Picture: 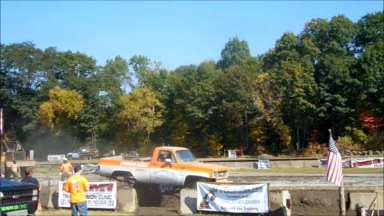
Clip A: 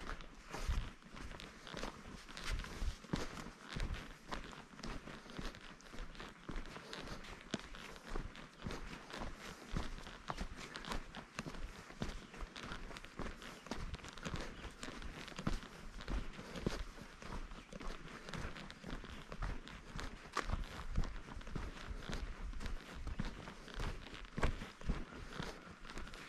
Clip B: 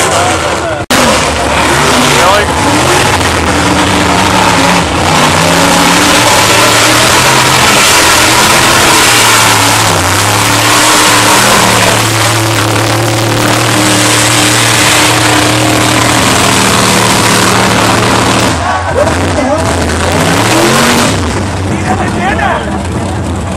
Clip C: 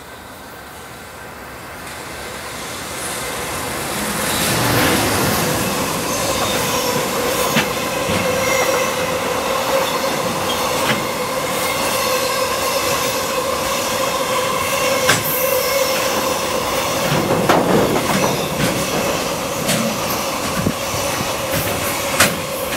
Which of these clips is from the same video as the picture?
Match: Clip B